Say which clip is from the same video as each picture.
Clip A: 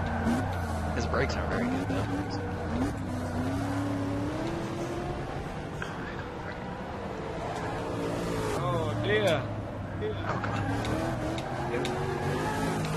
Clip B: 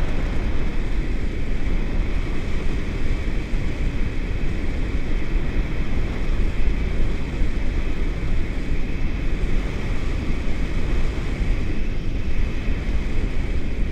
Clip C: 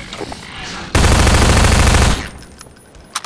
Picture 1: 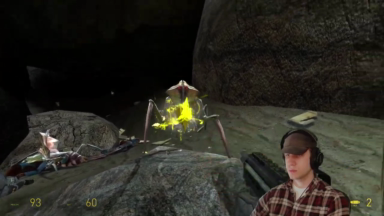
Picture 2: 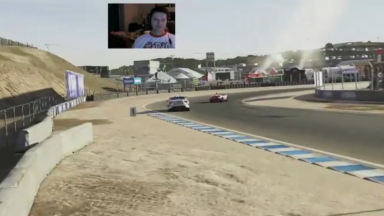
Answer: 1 C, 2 A